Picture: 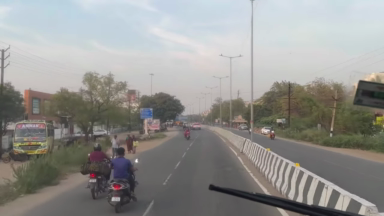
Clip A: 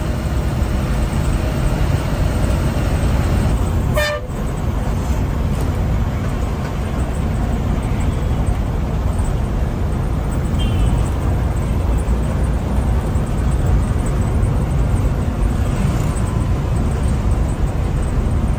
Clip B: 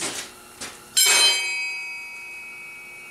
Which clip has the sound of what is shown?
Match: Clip A